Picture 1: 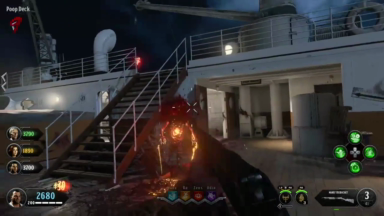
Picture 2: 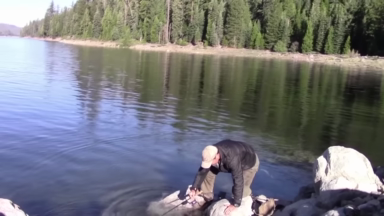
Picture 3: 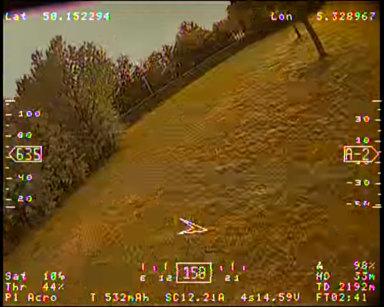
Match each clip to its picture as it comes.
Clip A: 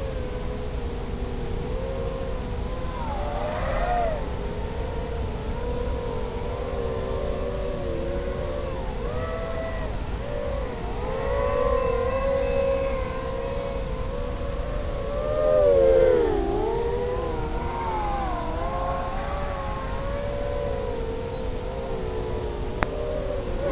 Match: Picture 3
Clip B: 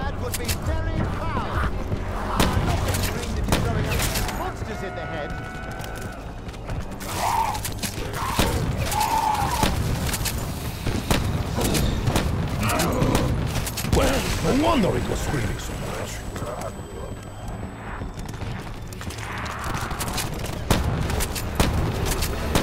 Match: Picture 1